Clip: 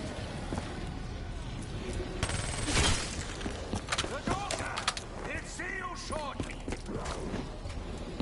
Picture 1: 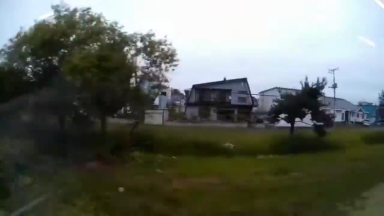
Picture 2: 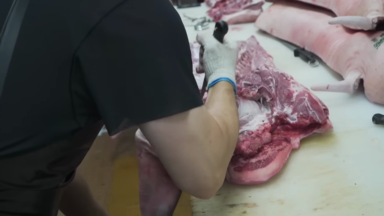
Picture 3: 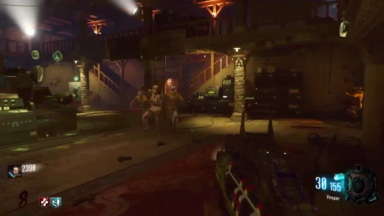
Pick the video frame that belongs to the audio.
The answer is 3